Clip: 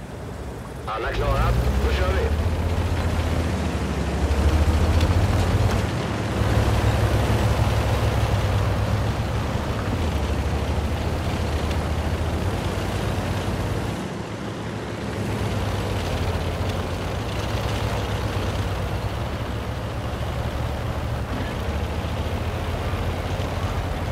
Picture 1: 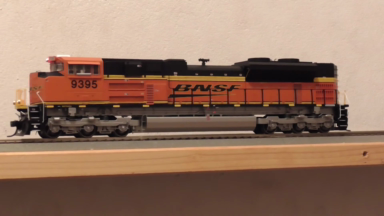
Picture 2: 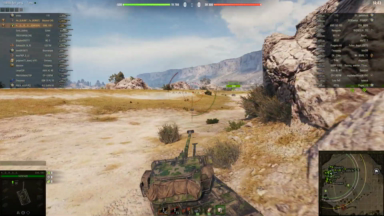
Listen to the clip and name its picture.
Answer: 2